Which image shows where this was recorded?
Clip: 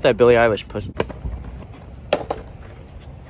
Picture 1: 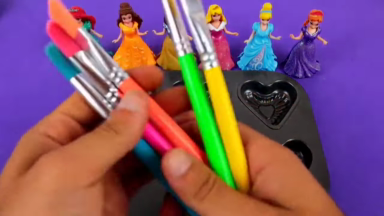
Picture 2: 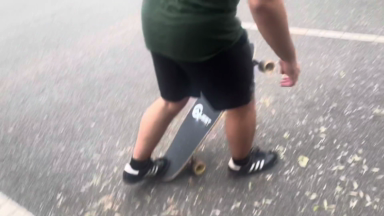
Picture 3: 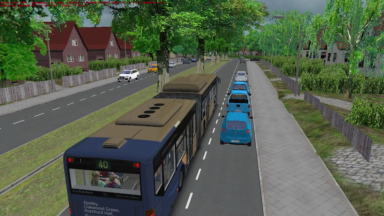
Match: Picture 2